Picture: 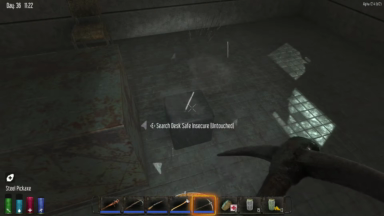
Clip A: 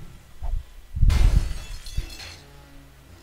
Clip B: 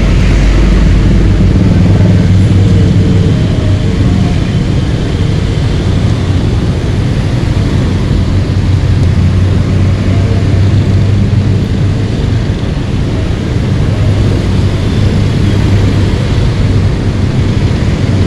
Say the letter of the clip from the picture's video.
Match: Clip A